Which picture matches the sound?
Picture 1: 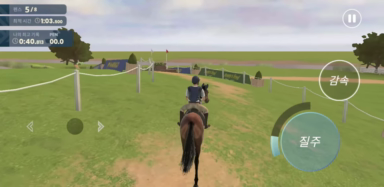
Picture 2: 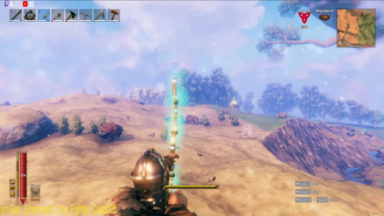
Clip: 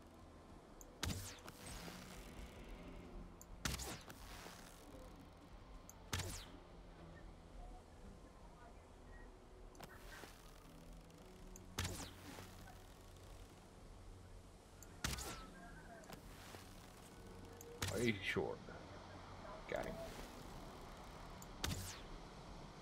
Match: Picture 2